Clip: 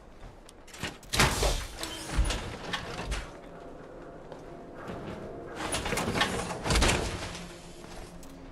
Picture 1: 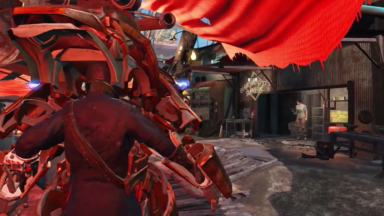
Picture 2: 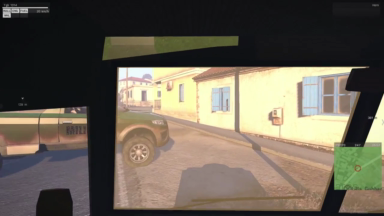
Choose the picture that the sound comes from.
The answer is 1